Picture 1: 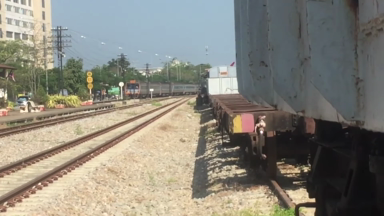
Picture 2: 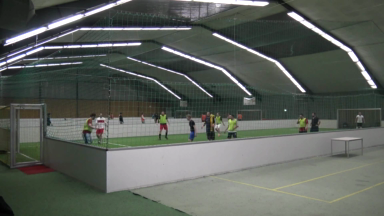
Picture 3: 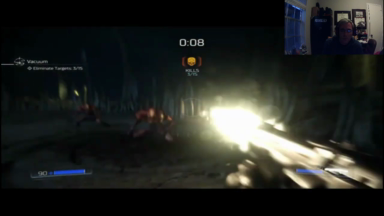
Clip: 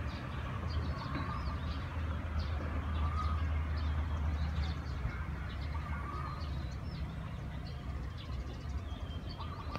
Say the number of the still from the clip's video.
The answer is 1